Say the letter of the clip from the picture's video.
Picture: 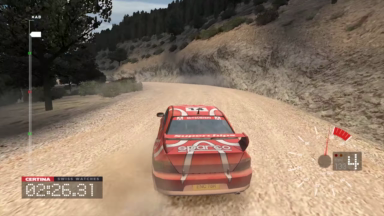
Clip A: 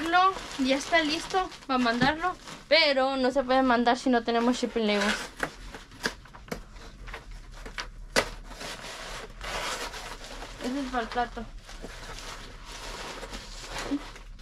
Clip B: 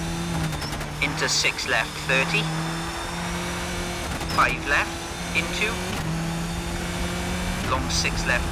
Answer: B